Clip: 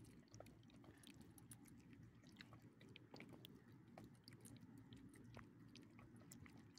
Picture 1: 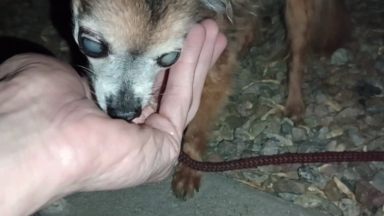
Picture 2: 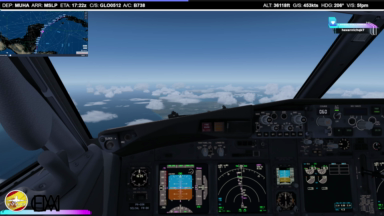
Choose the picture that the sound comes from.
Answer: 1